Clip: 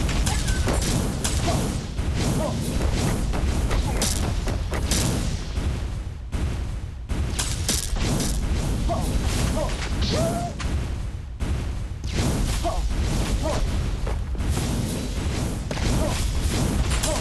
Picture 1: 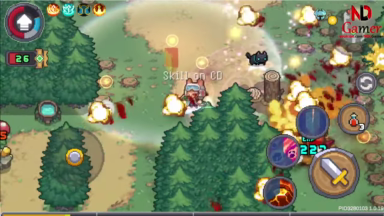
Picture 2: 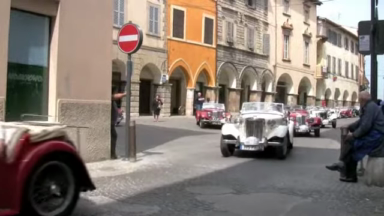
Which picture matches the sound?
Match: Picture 1